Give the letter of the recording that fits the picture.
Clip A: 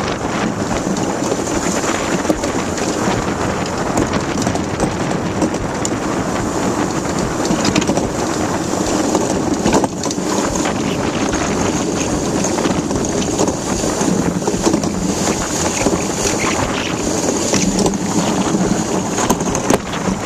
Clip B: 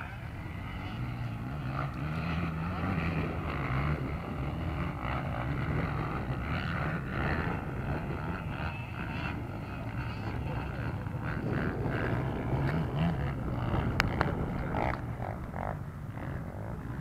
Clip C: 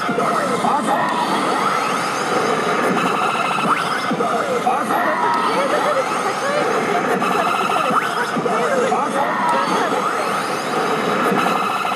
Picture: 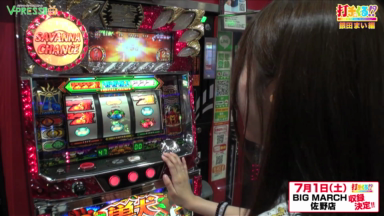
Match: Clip C